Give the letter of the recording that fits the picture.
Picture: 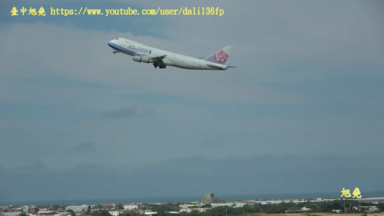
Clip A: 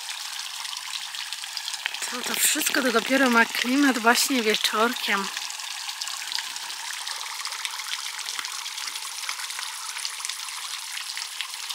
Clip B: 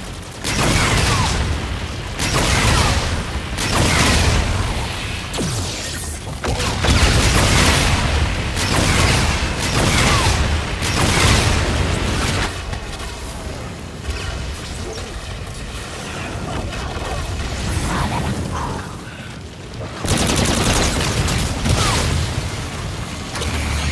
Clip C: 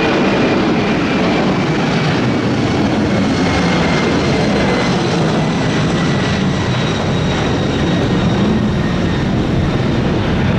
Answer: C